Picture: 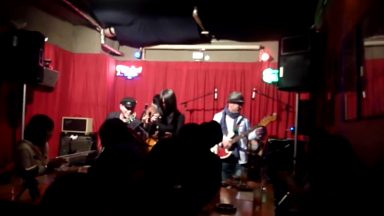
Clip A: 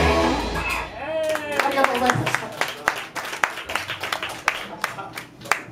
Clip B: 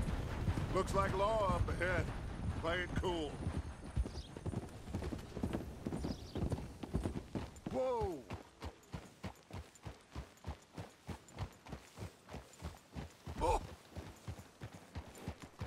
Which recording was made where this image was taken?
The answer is A